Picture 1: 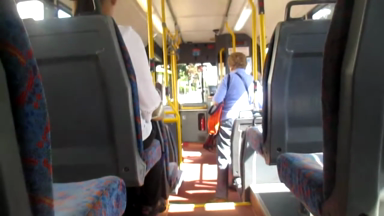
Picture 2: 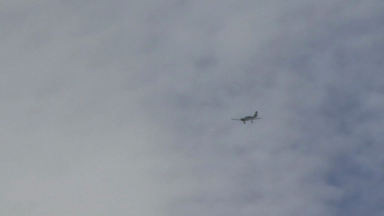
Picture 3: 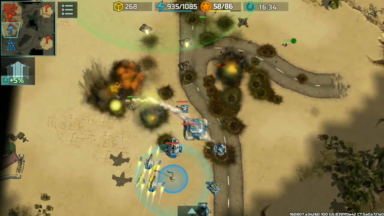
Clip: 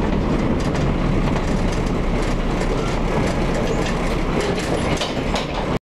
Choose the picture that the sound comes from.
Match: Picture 1